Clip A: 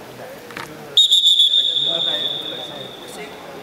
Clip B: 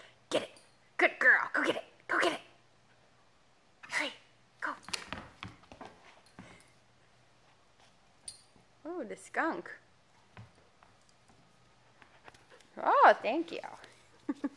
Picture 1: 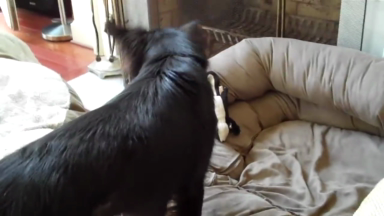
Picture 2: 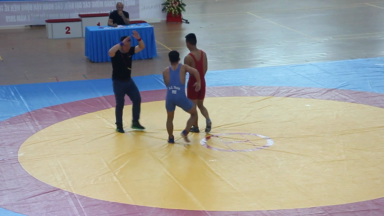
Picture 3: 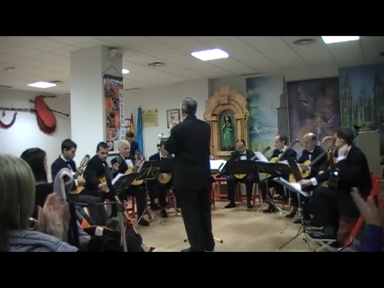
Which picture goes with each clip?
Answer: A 2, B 1